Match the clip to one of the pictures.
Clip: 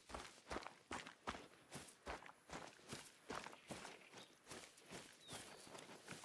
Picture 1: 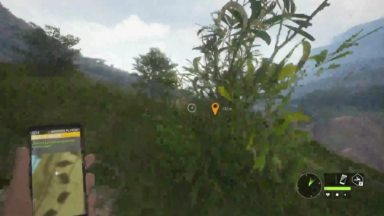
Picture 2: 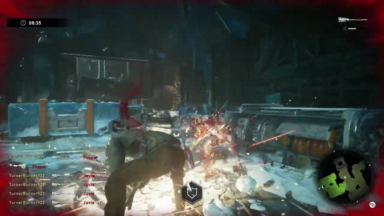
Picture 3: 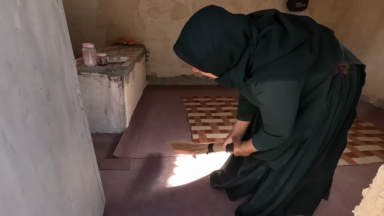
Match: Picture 1